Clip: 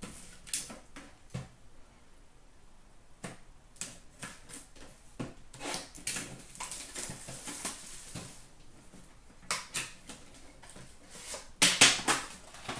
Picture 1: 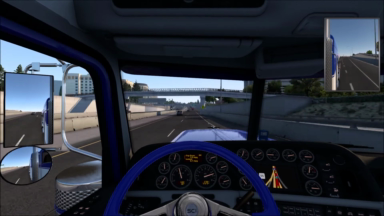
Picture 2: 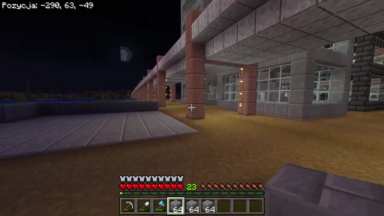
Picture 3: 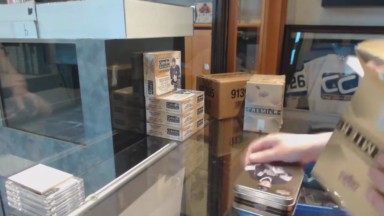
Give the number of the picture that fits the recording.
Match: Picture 3